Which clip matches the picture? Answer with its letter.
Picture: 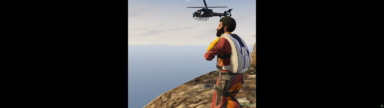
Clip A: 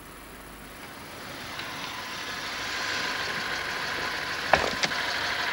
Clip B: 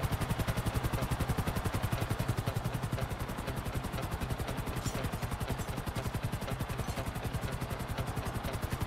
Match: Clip B